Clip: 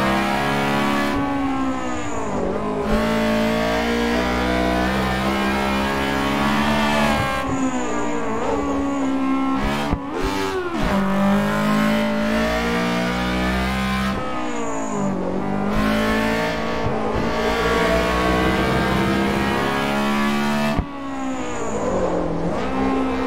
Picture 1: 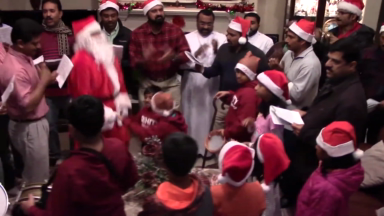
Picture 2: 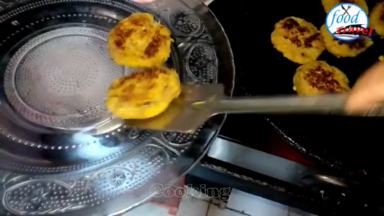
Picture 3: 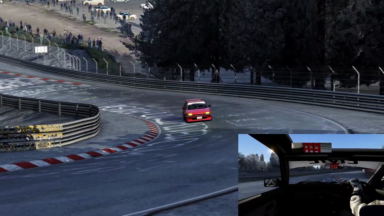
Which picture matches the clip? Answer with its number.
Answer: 3